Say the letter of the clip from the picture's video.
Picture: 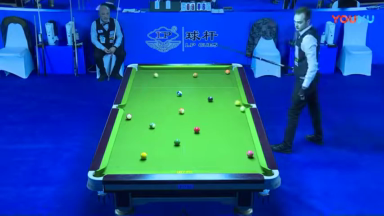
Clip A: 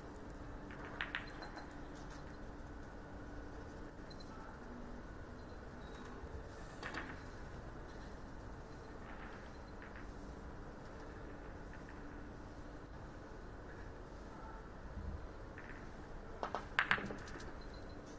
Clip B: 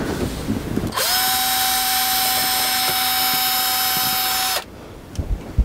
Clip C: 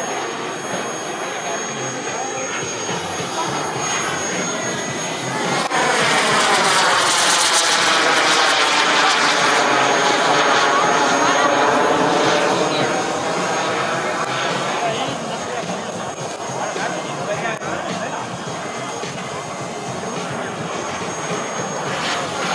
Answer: A